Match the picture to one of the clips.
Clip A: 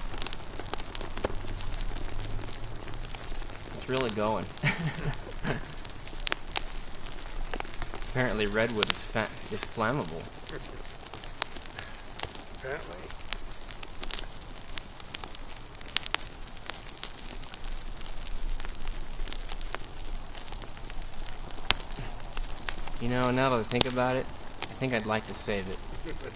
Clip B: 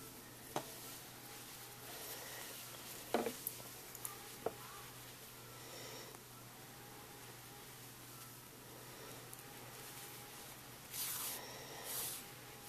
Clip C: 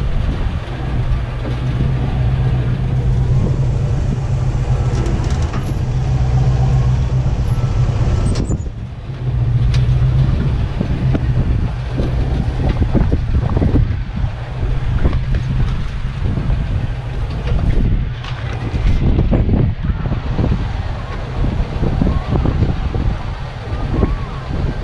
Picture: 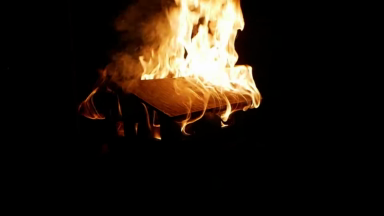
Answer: A